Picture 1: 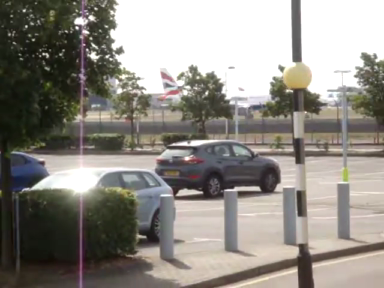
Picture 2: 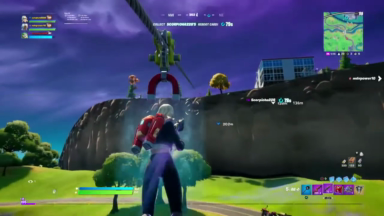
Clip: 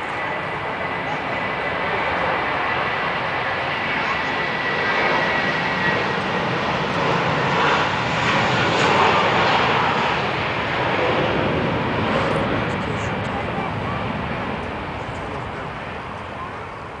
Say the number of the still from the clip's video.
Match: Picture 1